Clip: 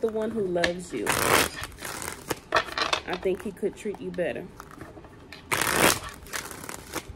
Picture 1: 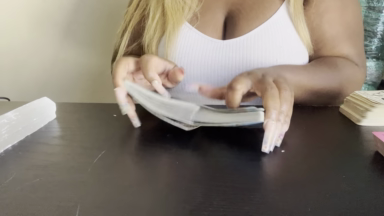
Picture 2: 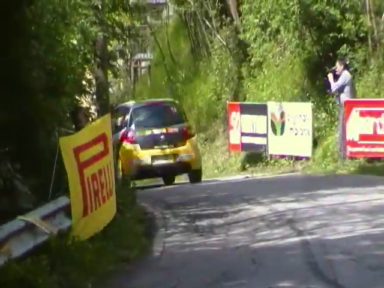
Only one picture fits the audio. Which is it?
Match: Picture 1